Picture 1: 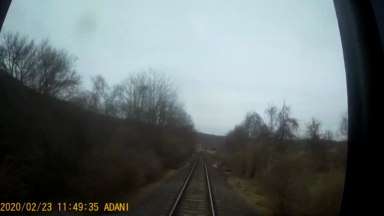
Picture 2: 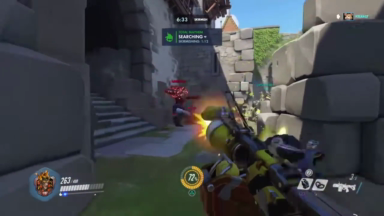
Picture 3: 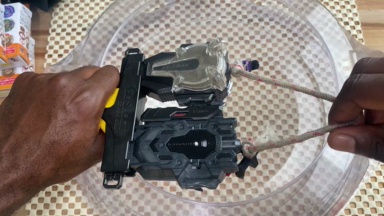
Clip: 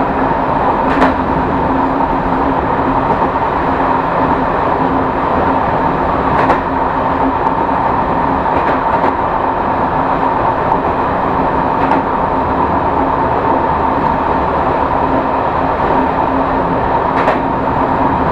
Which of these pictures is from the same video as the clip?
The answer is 1